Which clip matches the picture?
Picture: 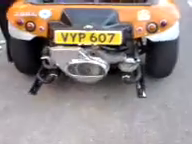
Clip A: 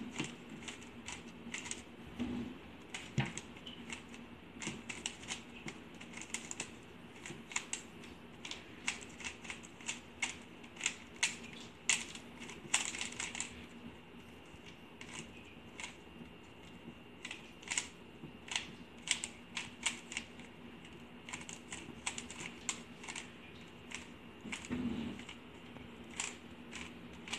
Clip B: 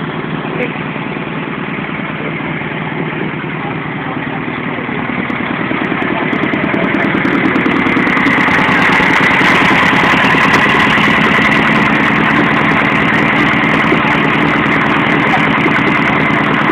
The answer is B